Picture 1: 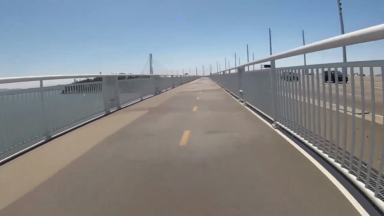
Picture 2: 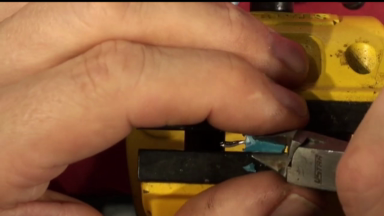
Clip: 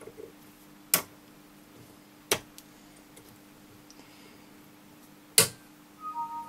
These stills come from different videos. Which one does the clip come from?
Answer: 2